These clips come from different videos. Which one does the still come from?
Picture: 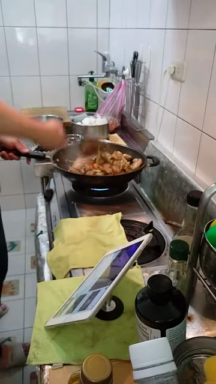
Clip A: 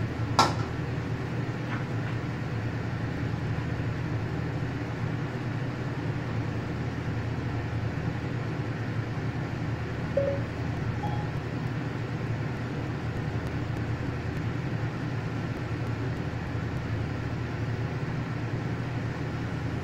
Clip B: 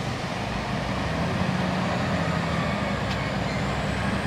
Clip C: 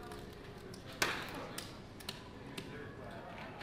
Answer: A